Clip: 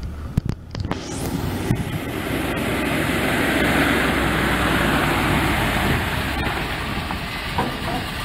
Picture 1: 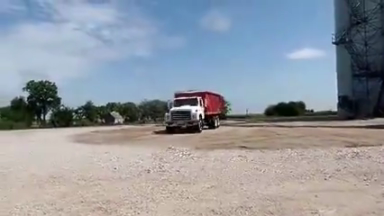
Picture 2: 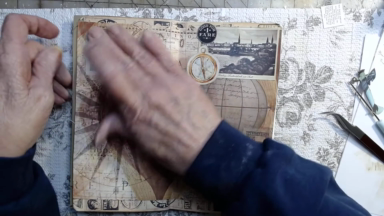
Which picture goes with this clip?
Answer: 1